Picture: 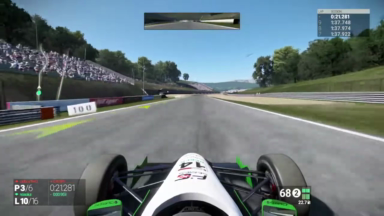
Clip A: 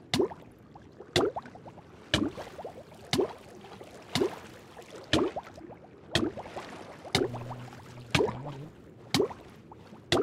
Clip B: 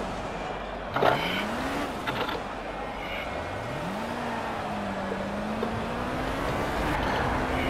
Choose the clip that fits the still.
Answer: B